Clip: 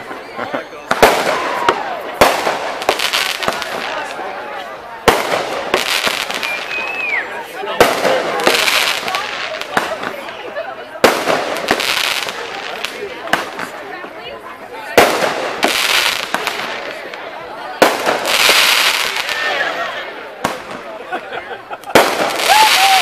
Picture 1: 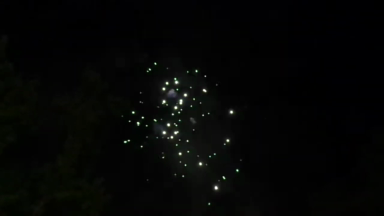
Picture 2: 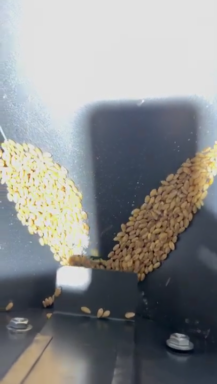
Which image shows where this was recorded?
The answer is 1